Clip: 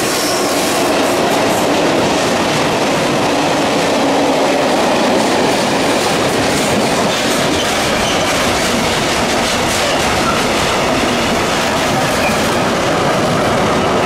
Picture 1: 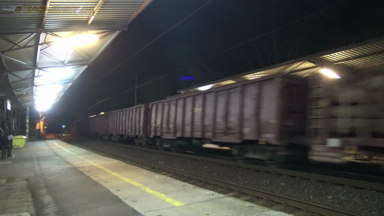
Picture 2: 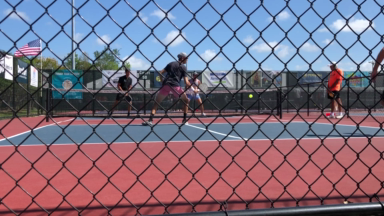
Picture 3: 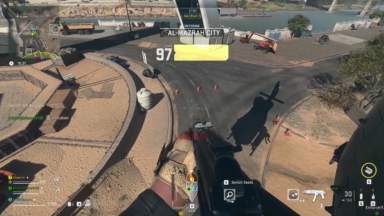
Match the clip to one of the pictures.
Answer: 1